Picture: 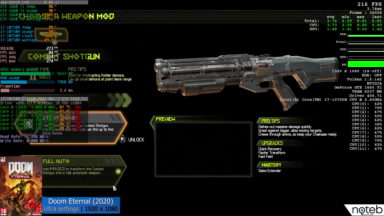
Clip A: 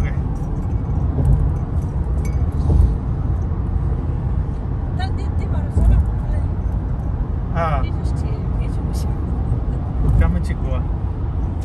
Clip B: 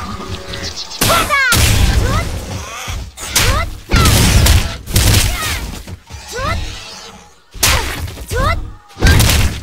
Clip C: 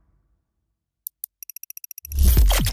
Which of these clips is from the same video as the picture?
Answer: C